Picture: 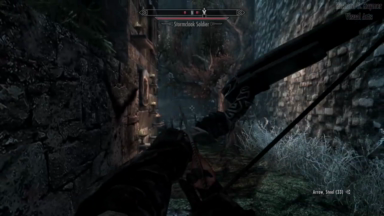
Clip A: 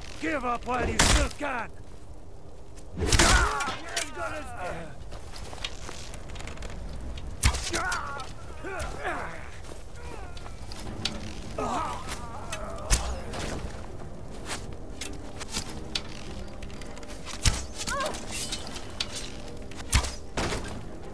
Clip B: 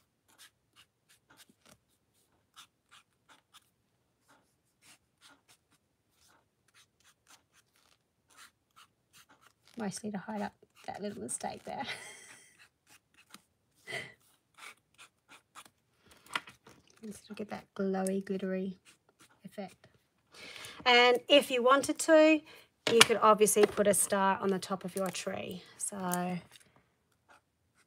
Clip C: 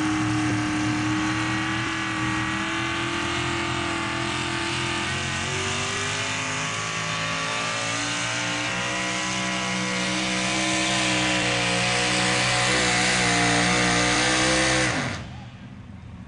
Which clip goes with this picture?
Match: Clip A